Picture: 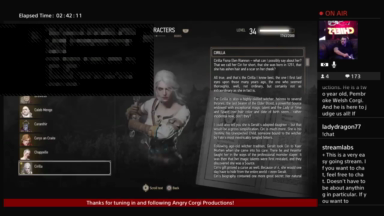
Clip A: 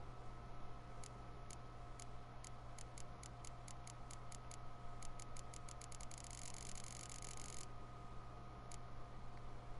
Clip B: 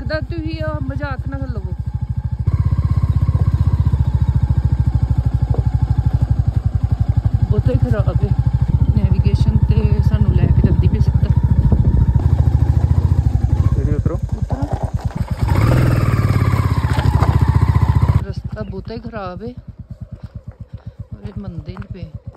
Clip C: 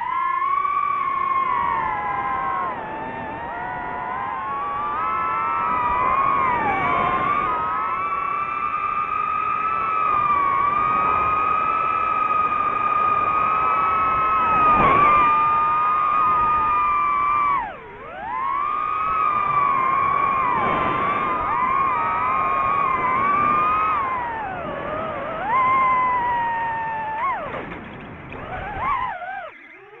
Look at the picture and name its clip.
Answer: A